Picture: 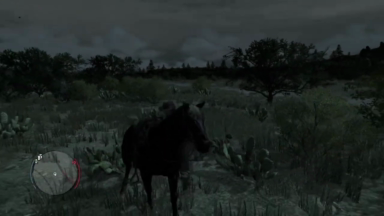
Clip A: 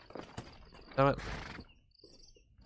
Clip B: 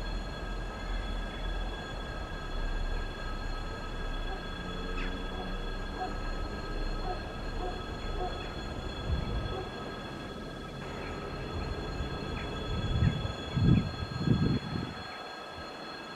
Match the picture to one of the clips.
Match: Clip A